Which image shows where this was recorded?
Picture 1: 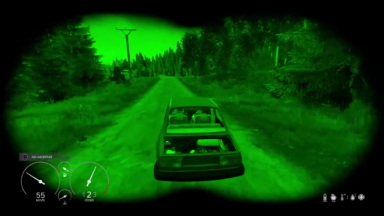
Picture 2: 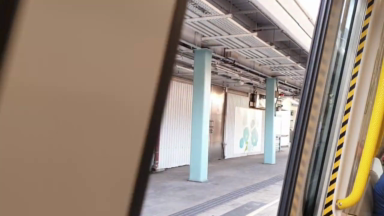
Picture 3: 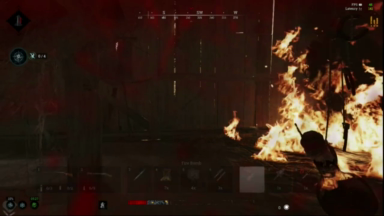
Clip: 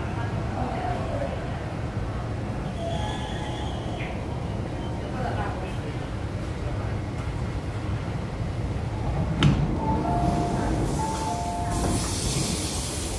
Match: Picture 2